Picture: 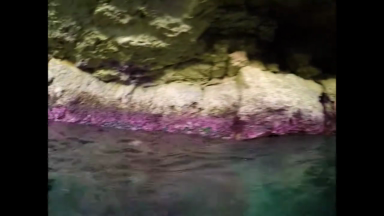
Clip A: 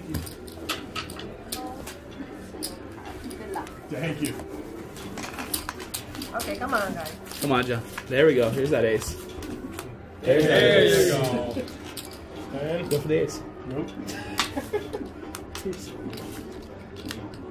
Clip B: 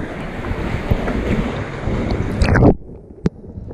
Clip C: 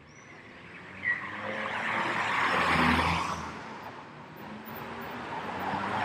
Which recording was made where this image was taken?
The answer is B